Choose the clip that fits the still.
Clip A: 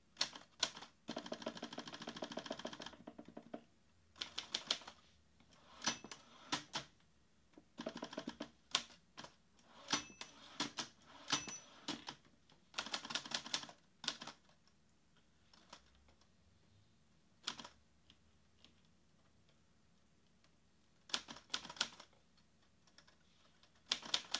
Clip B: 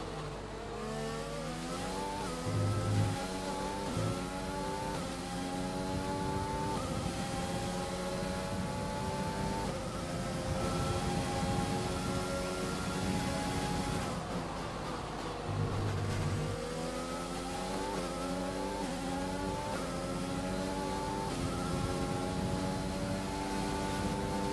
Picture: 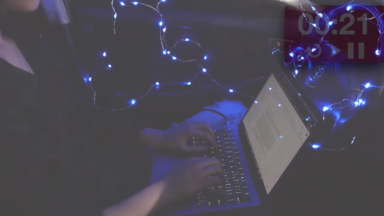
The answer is A